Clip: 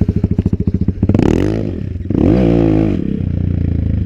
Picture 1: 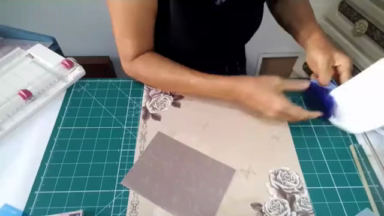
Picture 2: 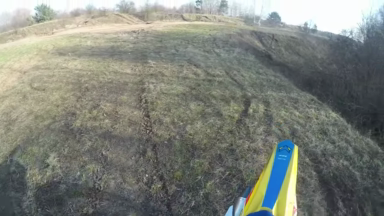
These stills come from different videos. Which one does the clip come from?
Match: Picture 2